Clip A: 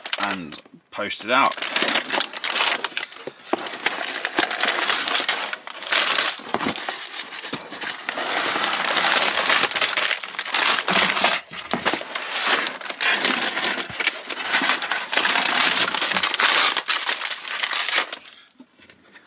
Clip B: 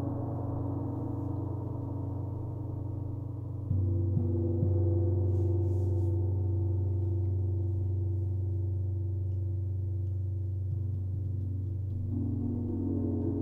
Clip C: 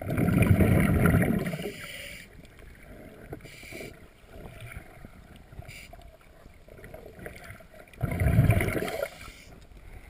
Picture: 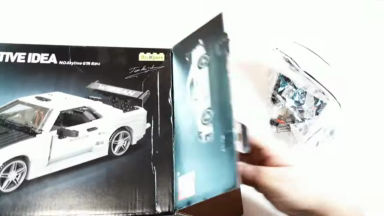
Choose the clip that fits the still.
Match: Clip A